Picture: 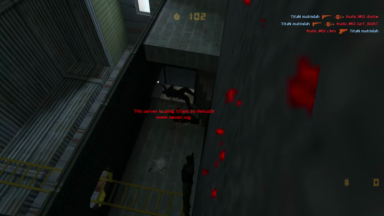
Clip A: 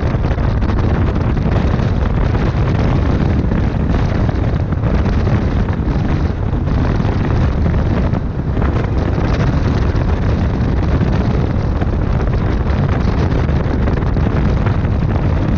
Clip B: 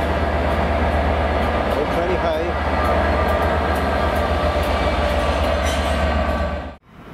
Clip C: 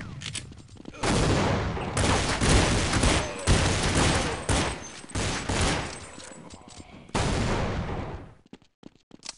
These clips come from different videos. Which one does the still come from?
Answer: C